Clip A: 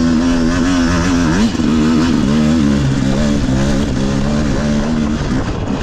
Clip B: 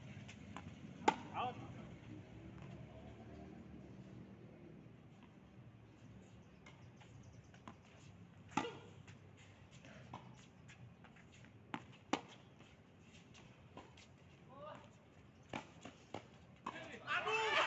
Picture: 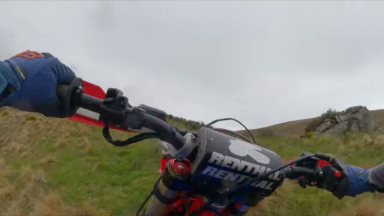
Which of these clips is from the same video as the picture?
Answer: A